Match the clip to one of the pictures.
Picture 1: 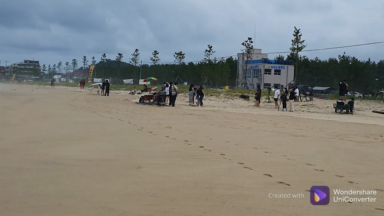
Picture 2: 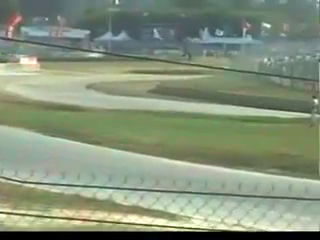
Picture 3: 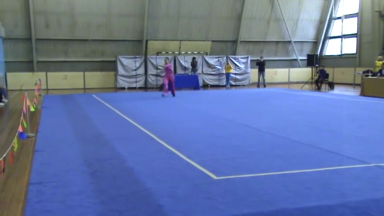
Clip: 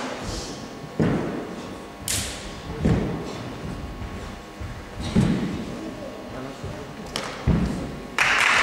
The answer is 3